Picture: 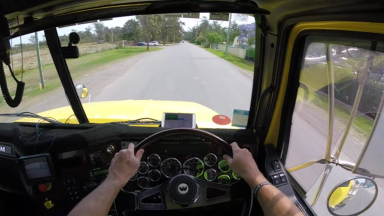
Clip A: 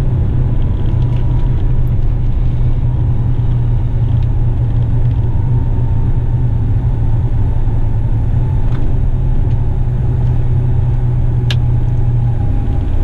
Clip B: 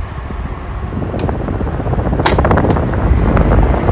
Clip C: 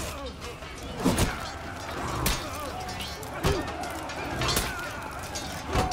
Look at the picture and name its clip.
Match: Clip A